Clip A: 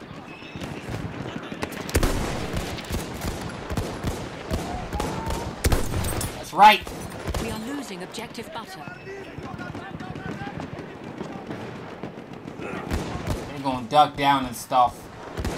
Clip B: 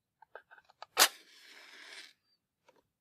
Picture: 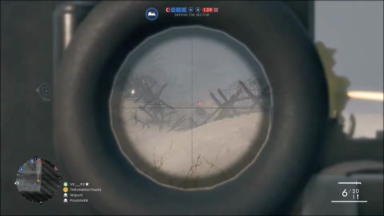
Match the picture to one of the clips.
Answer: A